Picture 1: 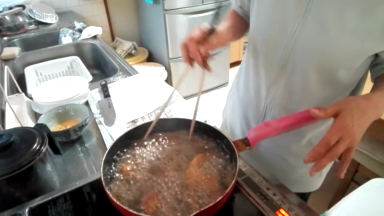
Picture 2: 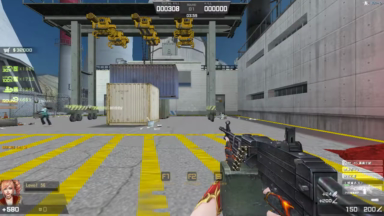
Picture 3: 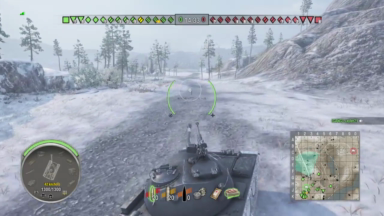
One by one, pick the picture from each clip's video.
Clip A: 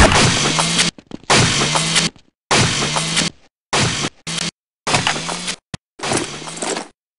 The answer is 2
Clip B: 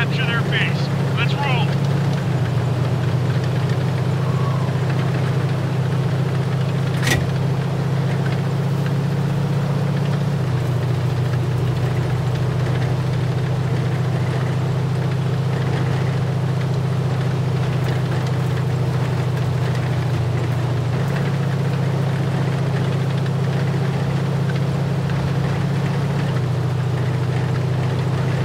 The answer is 3